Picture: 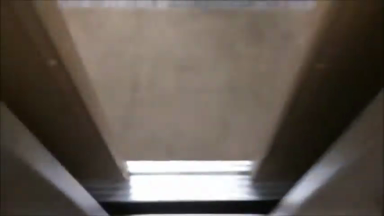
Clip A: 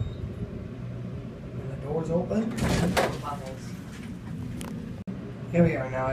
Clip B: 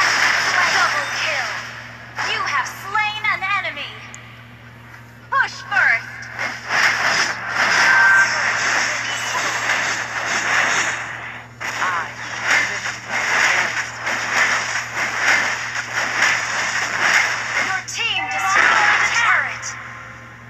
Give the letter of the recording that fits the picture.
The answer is A